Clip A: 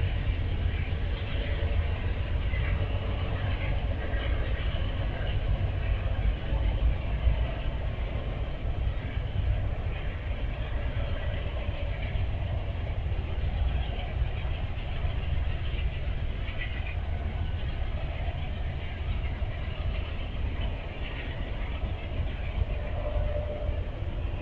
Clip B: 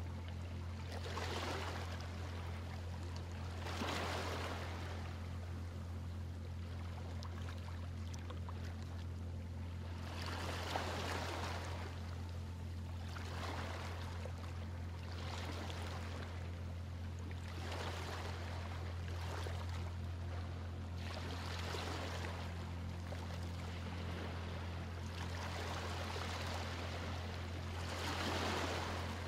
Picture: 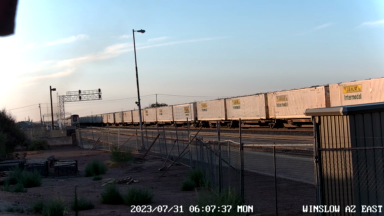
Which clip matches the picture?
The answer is A